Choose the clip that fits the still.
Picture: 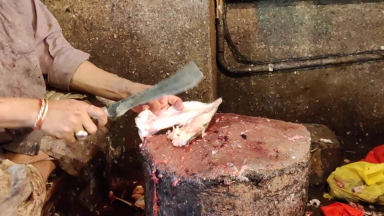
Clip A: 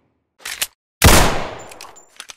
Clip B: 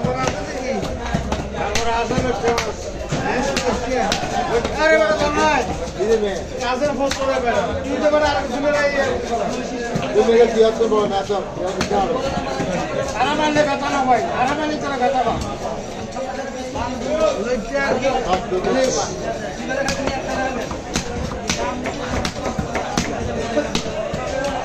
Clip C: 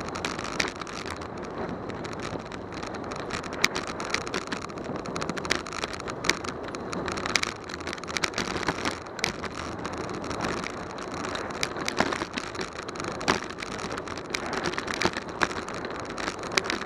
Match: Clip B